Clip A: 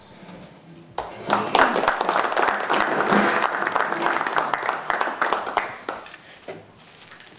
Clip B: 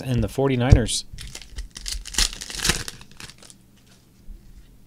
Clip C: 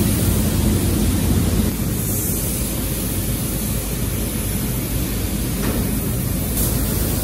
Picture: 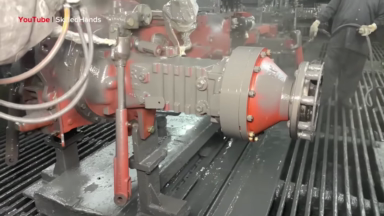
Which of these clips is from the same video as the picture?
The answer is C